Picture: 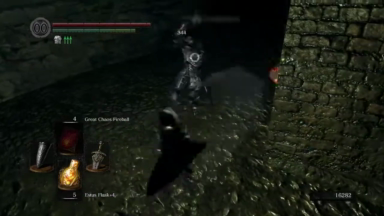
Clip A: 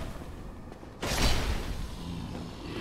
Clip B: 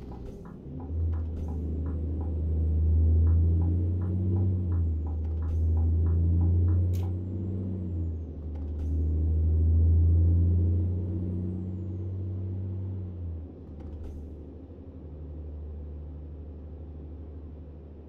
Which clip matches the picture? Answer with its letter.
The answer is A